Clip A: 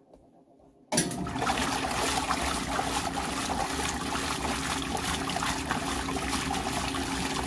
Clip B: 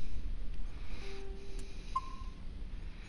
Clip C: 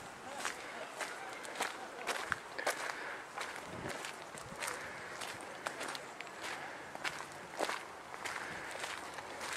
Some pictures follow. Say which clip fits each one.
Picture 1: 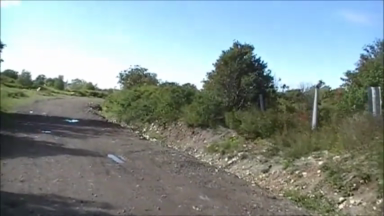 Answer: C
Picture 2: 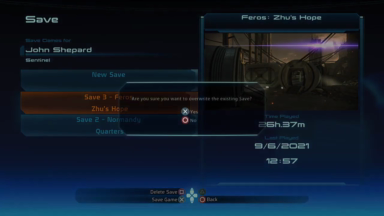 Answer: B